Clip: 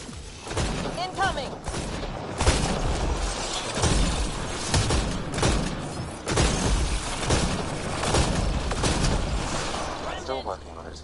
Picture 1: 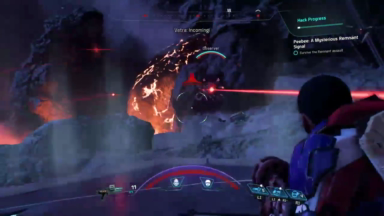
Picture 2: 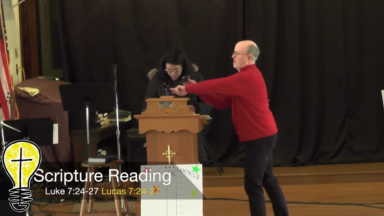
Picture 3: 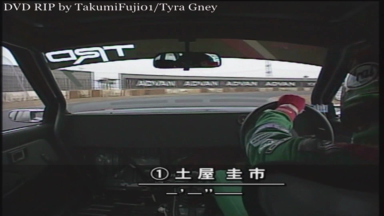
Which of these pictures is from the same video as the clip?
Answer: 1